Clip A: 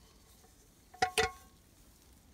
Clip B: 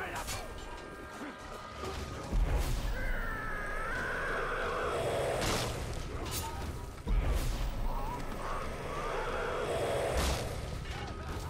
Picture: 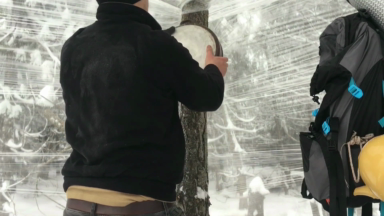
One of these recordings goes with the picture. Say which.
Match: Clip A